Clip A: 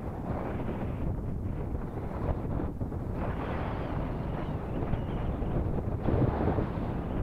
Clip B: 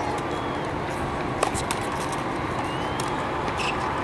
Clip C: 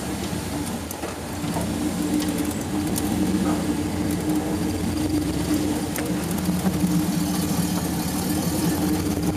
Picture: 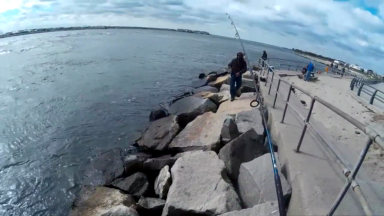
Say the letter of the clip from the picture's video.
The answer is A